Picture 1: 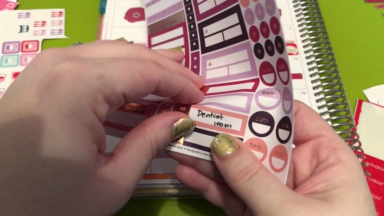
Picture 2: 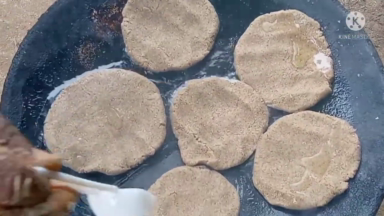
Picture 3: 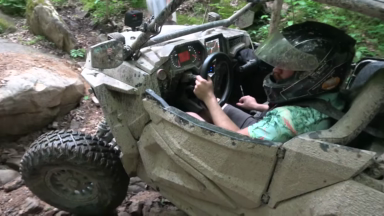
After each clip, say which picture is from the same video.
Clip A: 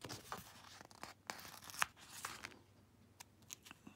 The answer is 1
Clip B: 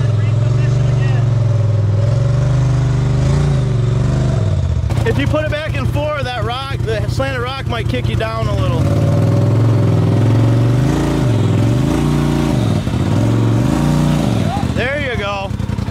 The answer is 3